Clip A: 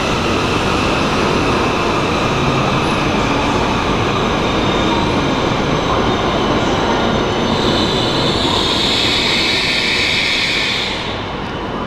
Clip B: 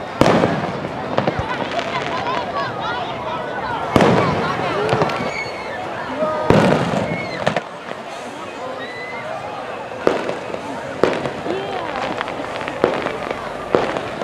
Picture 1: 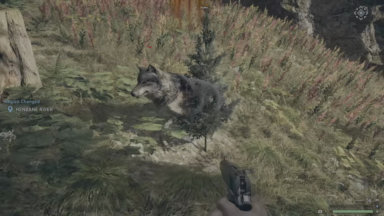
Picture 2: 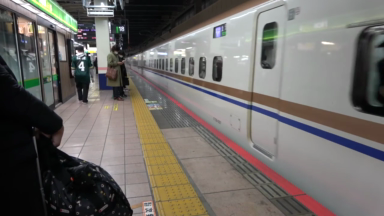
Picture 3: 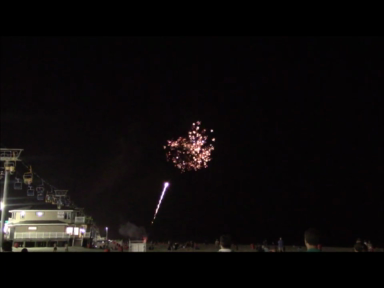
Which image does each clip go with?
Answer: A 2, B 3